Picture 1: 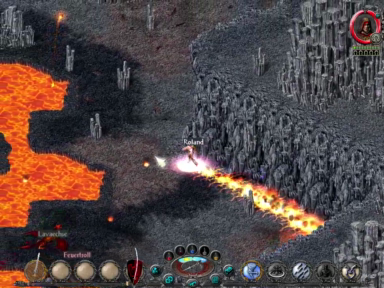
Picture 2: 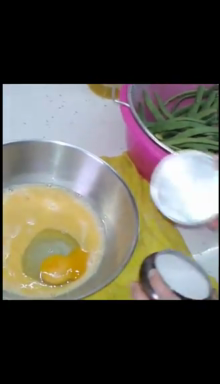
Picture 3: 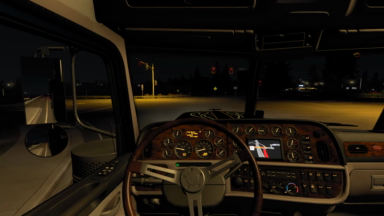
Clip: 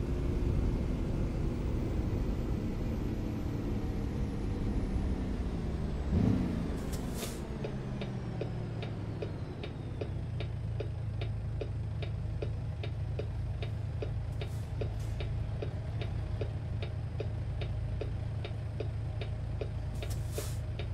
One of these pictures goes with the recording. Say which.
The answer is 3